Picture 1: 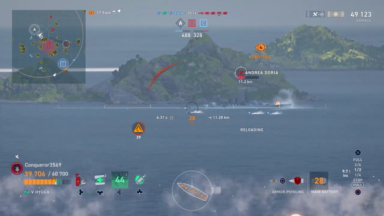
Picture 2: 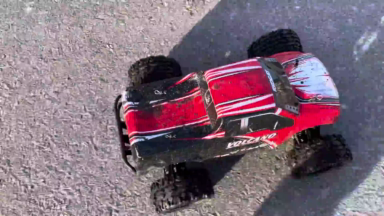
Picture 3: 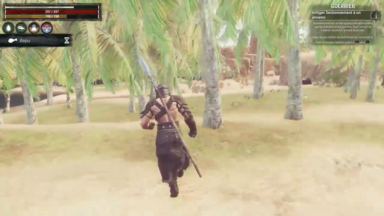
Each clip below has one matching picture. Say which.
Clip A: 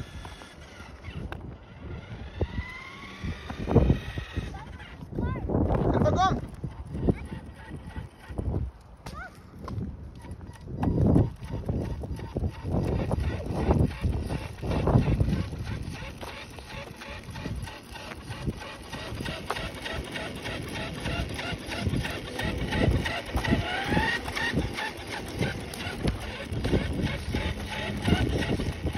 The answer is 2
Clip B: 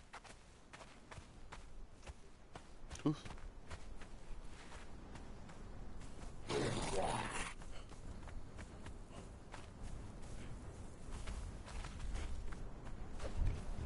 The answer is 3